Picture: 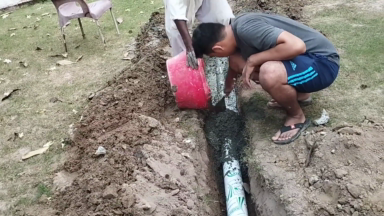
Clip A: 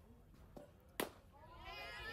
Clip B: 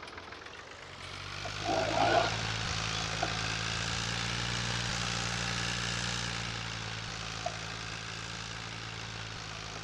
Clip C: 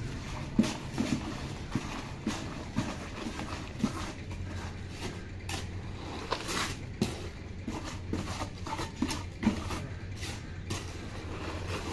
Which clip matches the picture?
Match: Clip C